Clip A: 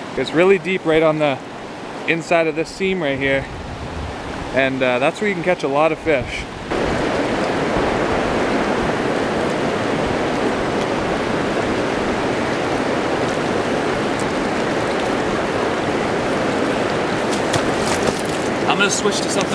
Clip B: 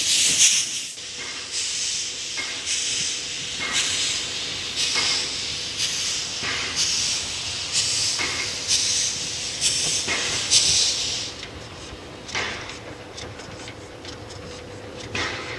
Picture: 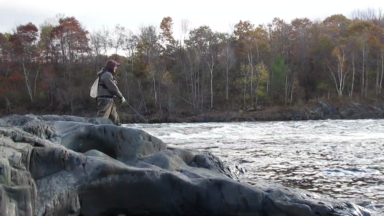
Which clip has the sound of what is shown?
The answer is A